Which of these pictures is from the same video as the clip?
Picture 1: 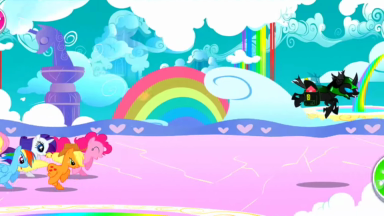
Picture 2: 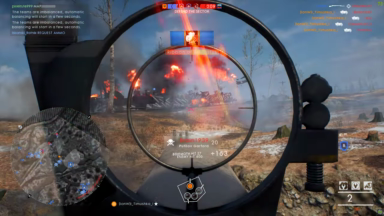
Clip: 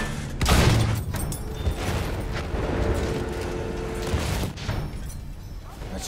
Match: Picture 2